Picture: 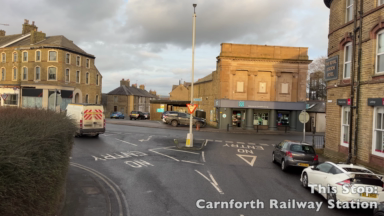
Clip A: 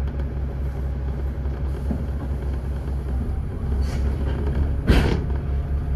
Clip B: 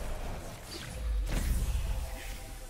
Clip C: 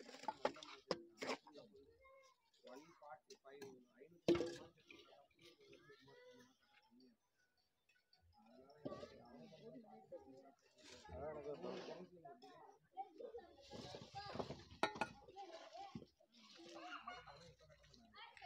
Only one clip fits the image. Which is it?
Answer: A